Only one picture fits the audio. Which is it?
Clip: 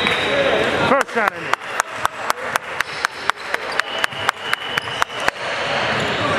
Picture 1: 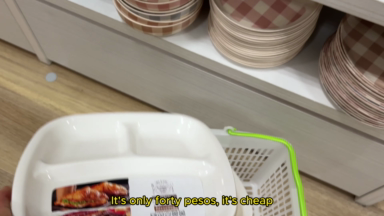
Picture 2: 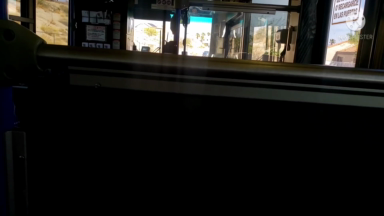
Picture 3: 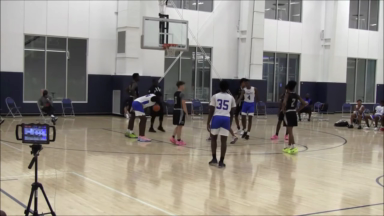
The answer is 3